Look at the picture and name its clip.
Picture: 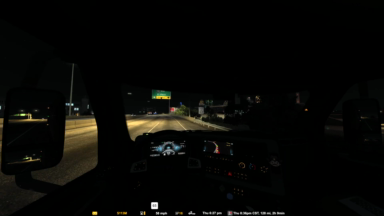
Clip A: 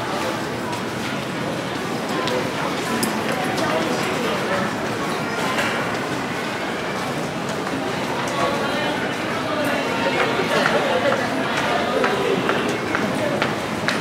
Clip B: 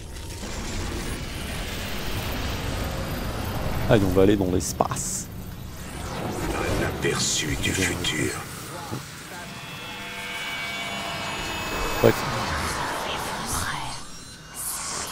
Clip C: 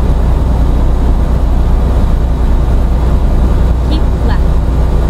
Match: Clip C